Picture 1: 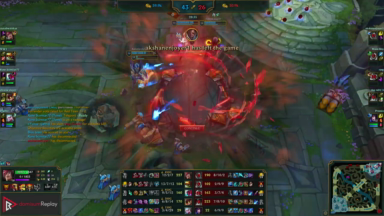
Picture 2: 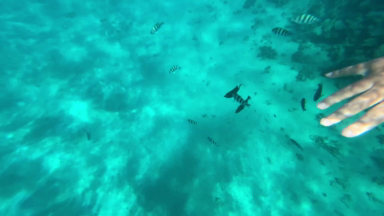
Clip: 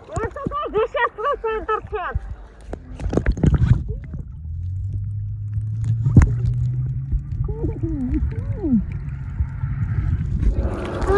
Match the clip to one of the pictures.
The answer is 2